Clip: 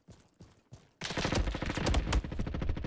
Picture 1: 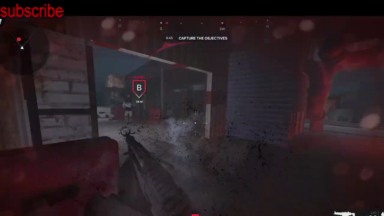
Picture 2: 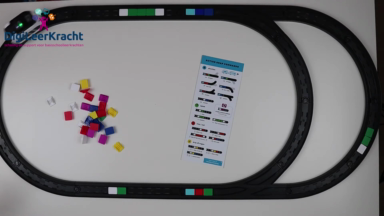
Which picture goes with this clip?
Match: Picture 1